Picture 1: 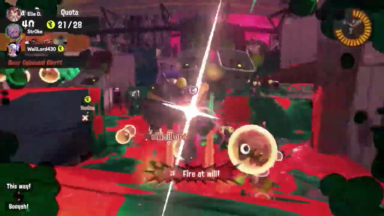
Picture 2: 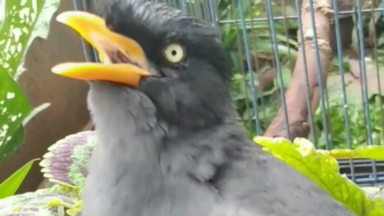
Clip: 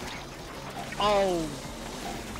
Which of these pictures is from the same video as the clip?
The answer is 1